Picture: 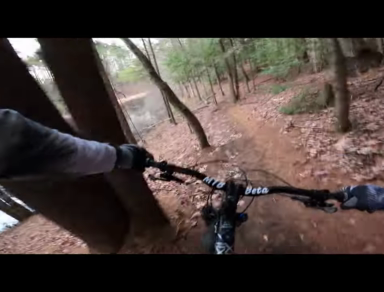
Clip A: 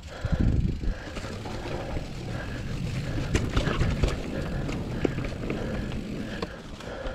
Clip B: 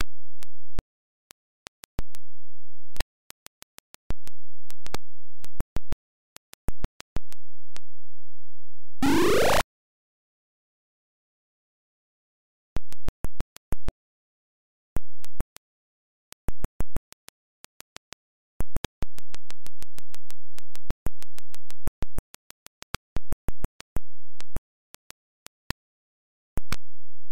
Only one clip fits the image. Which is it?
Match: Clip A